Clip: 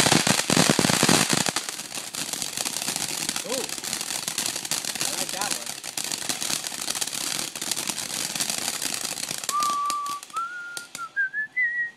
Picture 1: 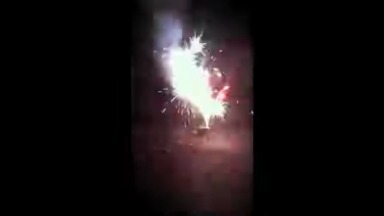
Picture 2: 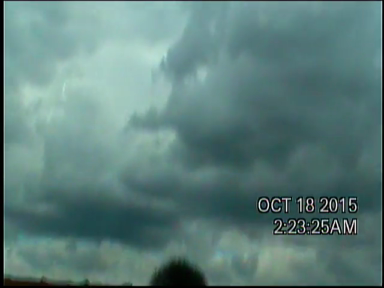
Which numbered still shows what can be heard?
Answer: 1